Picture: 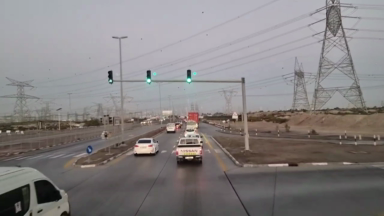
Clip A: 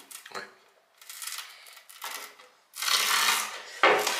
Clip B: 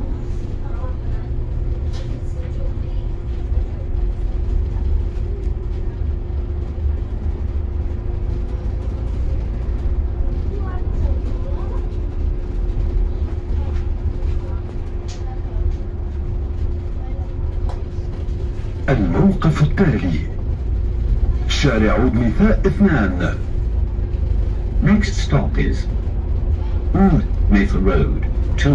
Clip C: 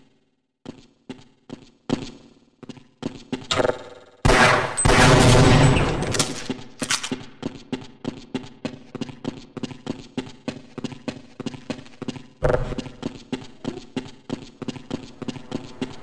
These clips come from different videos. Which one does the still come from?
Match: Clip B